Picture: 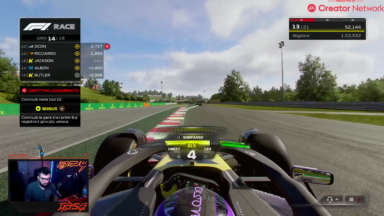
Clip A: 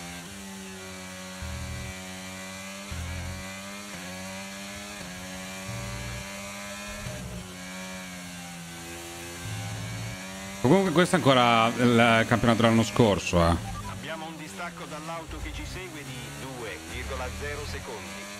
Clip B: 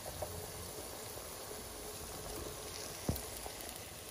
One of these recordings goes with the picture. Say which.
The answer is A